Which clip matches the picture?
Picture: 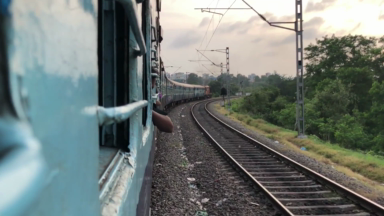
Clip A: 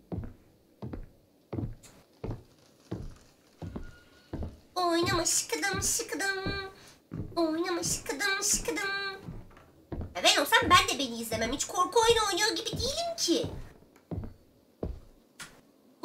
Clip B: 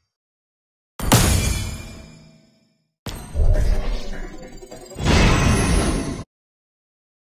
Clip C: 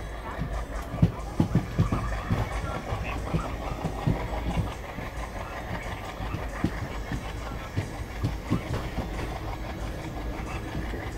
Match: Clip C